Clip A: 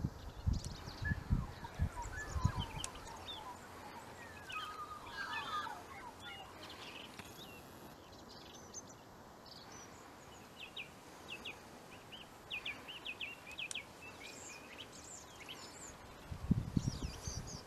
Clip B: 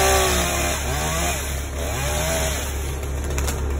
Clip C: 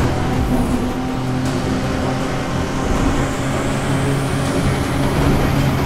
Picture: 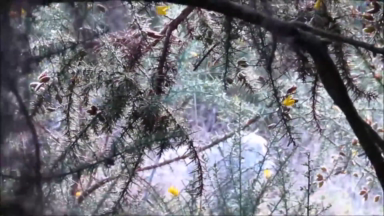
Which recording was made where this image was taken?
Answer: A